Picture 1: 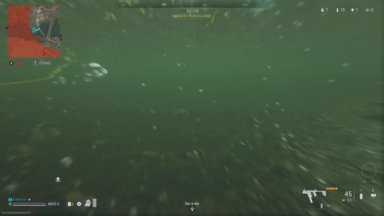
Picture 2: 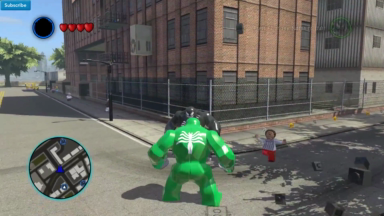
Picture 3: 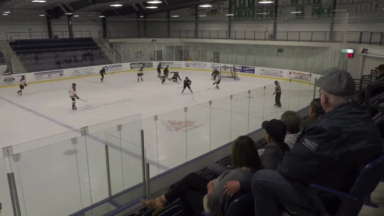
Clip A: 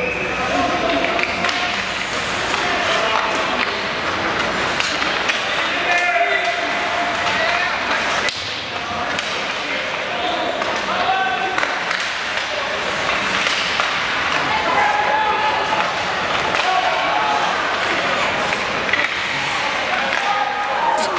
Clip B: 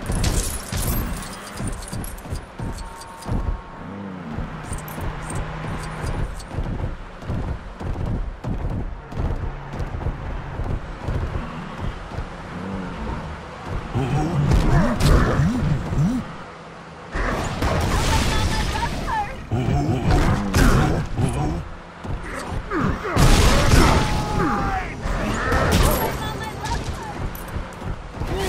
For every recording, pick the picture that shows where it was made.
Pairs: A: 3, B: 2